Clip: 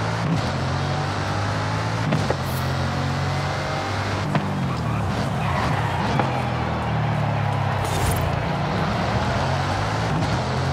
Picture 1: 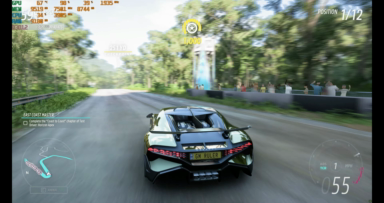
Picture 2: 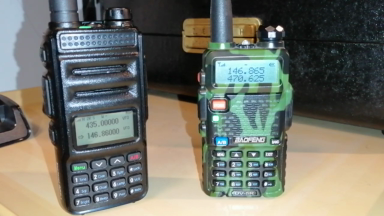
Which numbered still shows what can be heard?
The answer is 1